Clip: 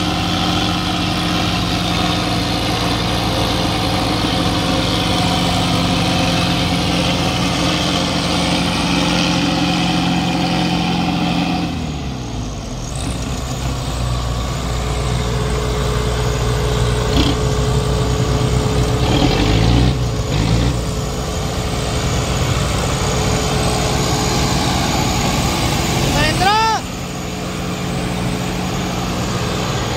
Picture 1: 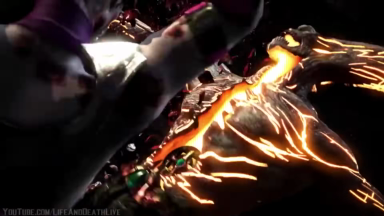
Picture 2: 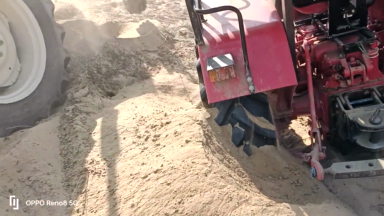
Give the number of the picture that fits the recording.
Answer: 2